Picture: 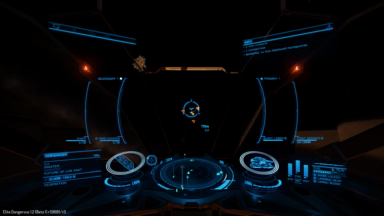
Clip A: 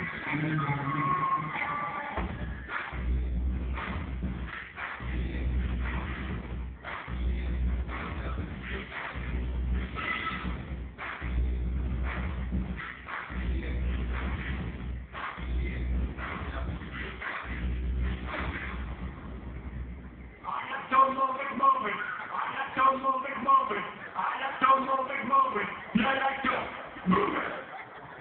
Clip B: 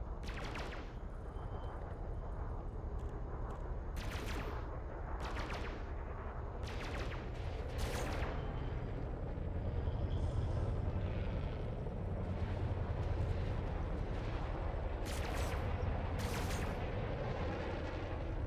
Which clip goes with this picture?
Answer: B